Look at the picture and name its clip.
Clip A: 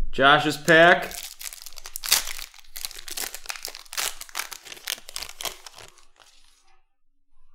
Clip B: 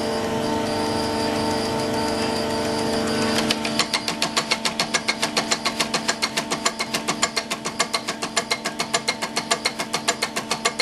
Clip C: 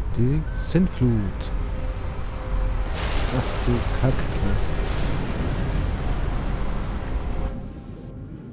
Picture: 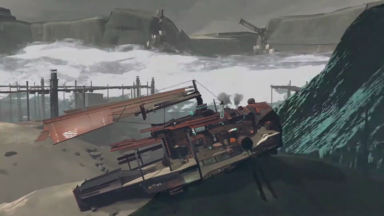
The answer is C